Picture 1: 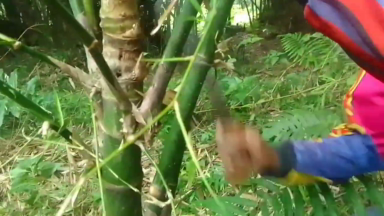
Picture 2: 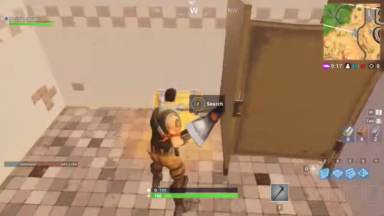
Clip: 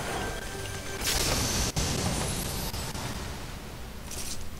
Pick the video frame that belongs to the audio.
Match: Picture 2